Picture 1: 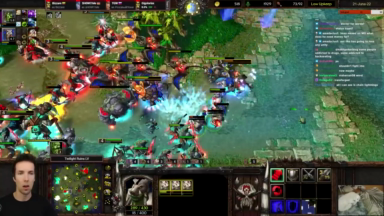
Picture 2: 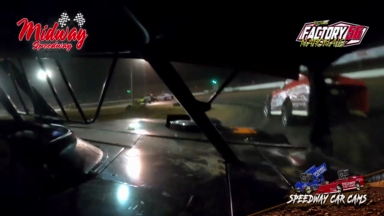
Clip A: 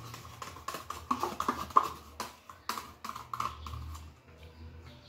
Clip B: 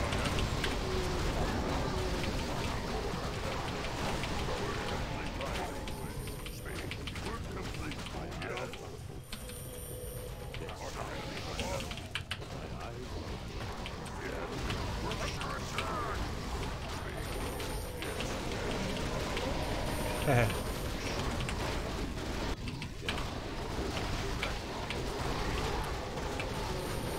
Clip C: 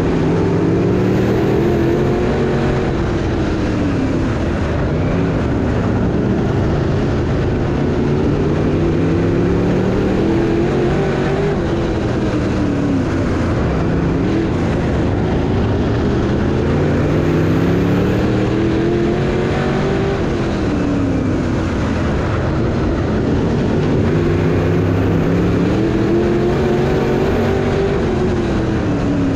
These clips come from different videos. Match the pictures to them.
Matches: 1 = B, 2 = C